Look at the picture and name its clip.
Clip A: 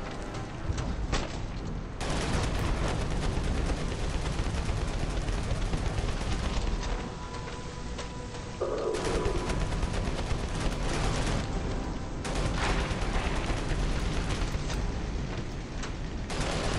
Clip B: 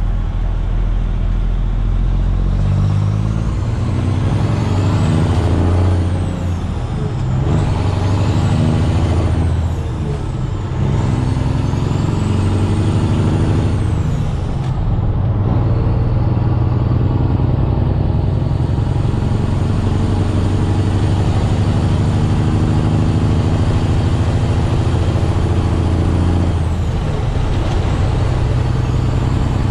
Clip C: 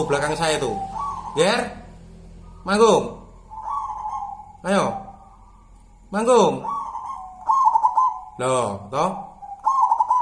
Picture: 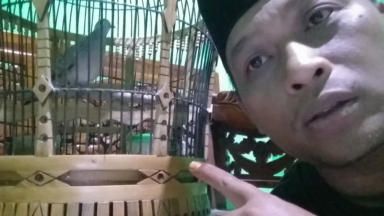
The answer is C